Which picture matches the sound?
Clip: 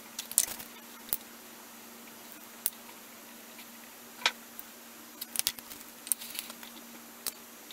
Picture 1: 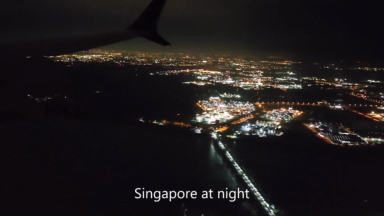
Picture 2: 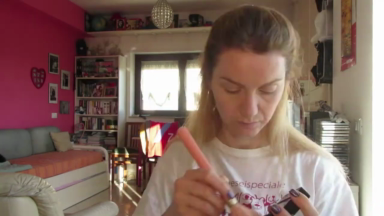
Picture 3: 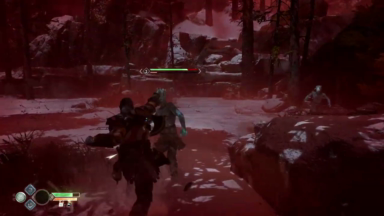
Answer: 2